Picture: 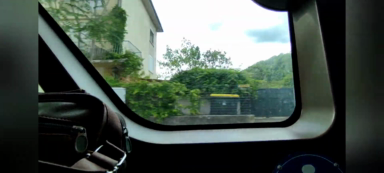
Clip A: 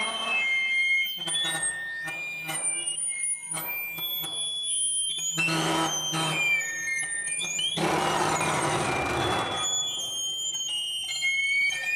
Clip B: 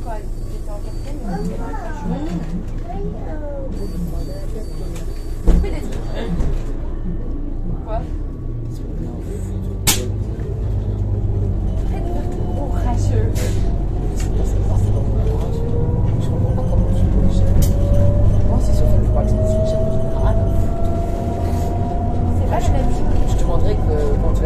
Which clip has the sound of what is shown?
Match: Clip B